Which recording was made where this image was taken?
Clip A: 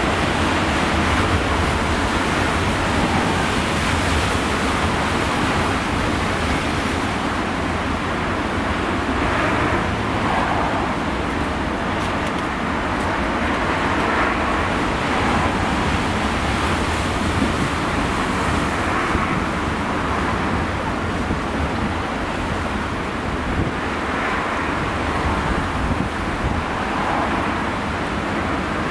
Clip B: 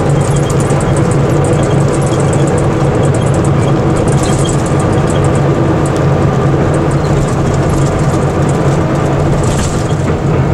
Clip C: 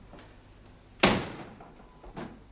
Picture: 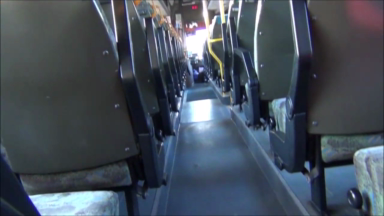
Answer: B